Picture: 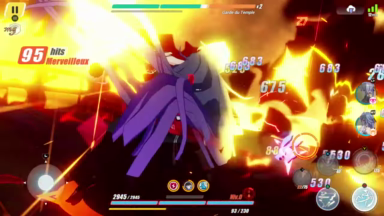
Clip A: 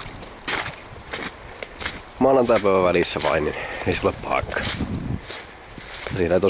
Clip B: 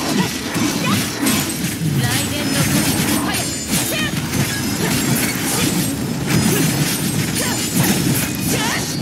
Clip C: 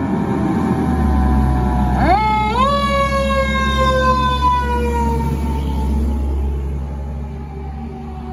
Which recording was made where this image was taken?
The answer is B